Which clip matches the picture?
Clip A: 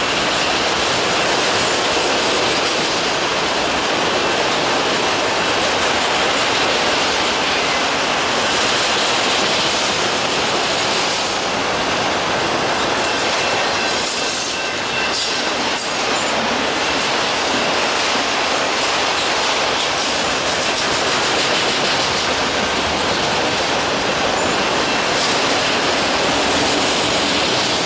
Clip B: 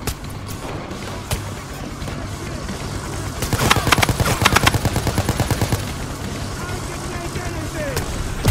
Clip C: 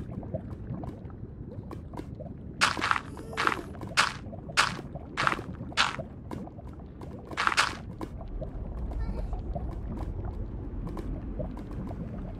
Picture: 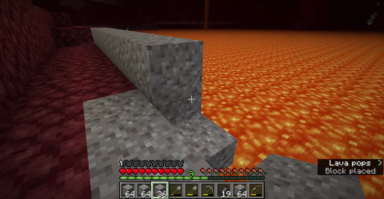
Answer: C